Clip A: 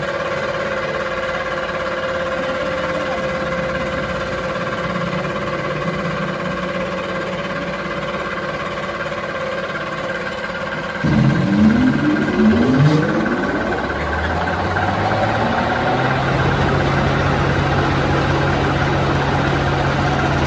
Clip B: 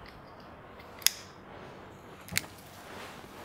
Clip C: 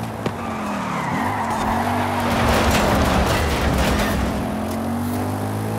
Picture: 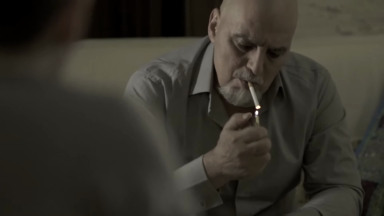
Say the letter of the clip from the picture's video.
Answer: B